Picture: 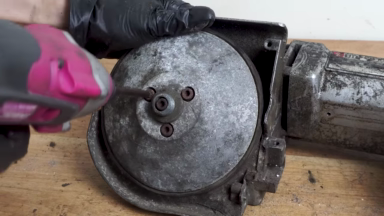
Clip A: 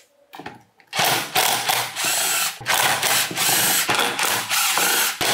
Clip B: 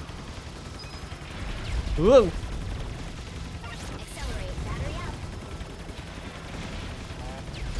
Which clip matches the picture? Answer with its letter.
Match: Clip A